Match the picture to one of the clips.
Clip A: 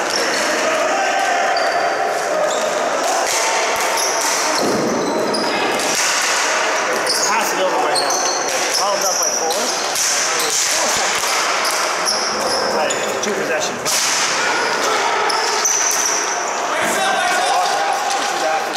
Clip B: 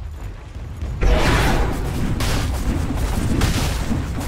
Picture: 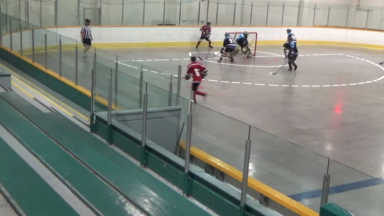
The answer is A